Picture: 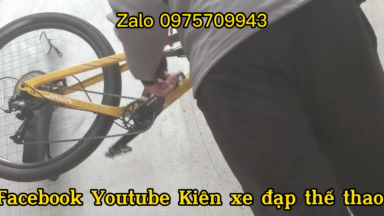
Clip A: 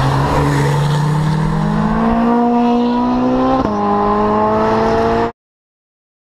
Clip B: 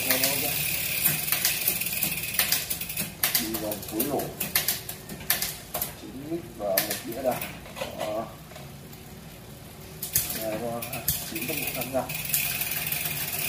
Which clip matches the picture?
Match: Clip B